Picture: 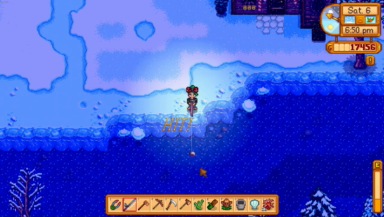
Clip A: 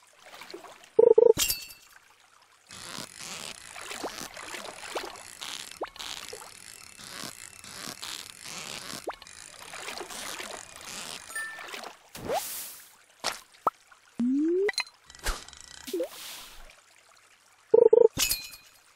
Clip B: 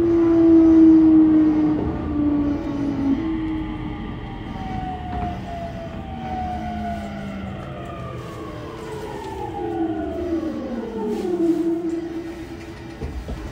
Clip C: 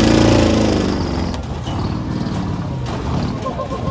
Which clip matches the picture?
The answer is A